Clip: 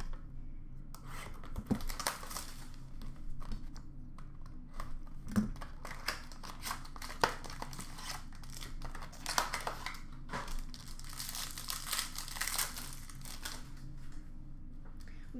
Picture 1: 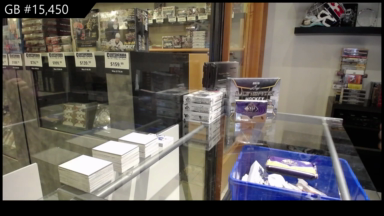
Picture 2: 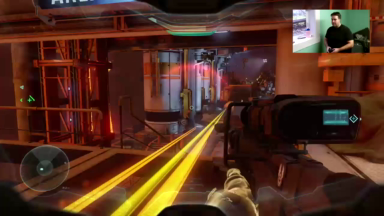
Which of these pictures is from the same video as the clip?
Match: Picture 1